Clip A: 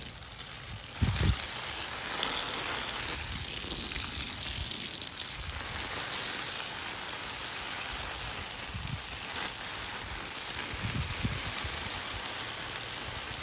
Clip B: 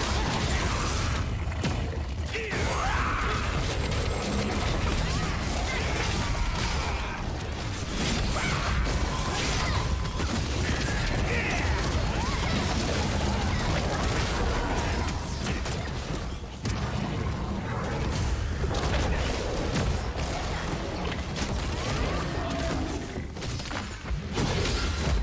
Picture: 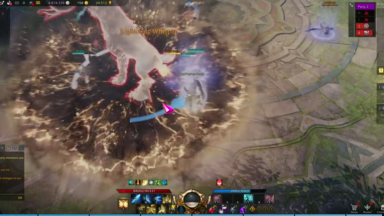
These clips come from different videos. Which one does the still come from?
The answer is B